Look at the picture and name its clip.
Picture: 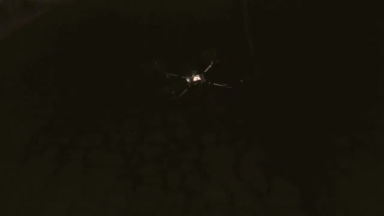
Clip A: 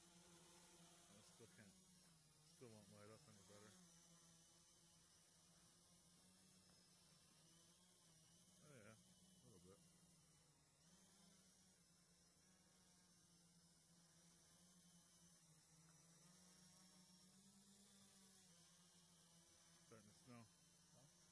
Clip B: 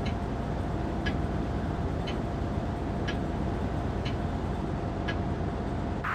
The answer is A